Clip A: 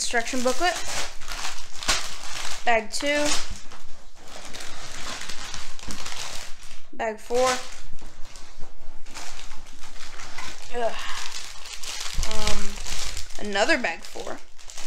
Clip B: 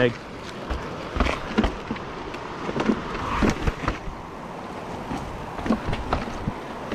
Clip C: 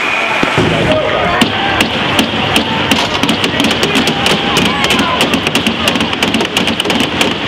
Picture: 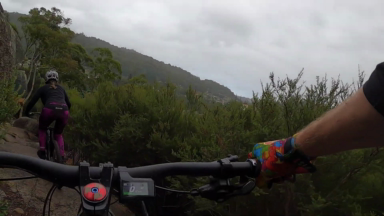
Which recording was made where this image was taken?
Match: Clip B